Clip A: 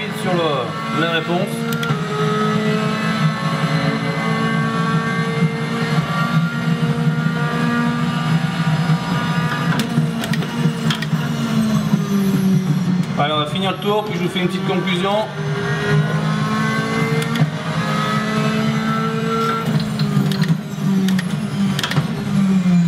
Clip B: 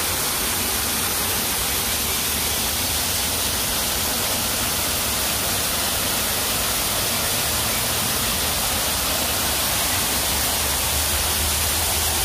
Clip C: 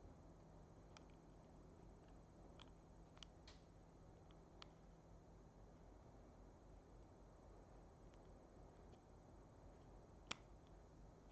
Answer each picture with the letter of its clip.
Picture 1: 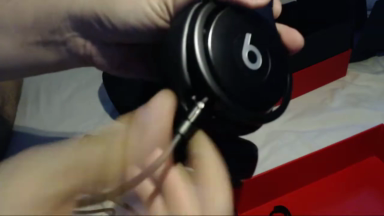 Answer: C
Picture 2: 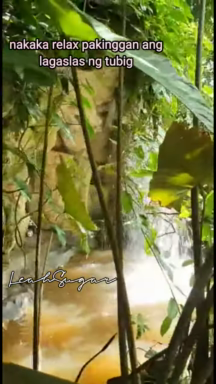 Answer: B